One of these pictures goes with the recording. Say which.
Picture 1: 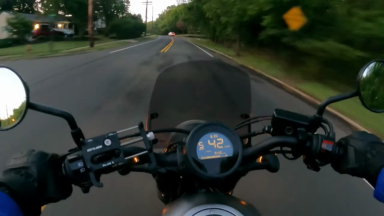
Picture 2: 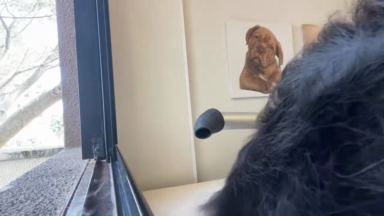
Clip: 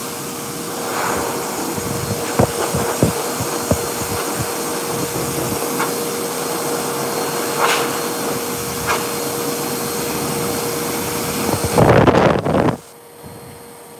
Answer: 2